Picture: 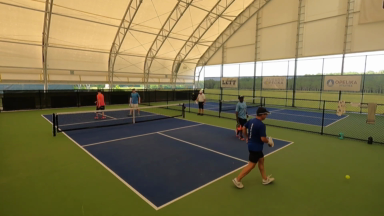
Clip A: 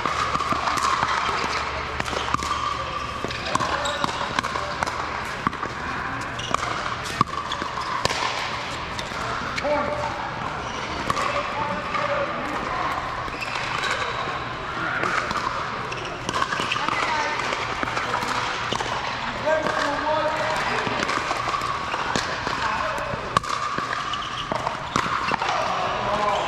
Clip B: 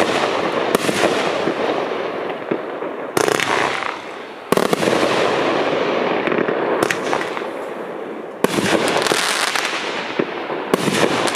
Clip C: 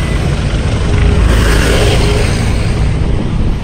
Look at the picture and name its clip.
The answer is A